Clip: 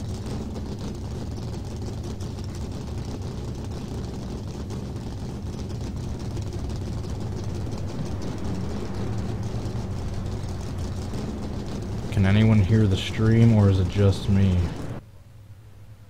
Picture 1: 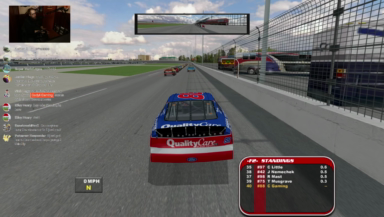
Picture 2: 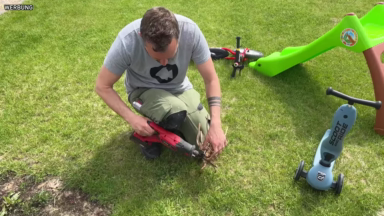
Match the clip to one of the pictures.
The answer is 1